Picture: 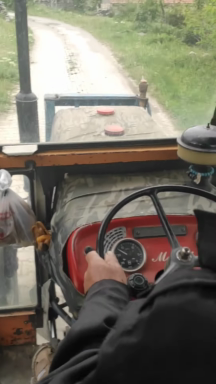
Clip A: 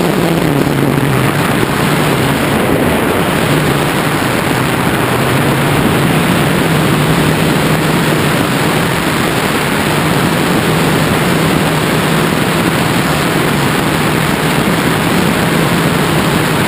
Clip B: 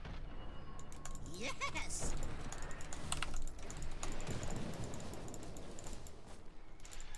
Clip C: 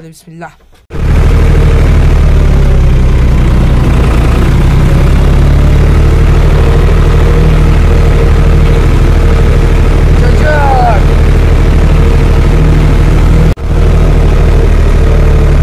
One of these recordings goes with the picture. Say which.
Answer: C